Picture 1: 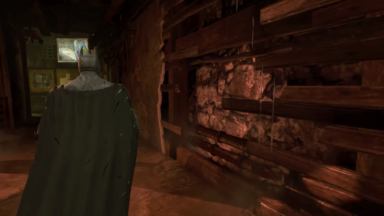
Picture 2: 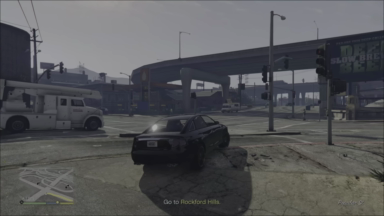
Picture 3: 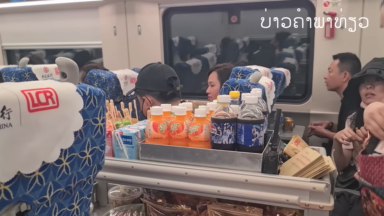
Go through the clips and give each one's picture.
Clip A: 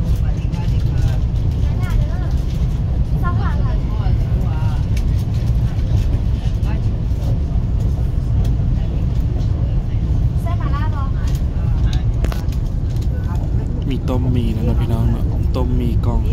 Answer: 3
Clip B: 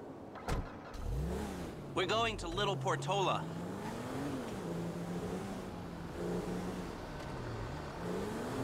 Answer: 2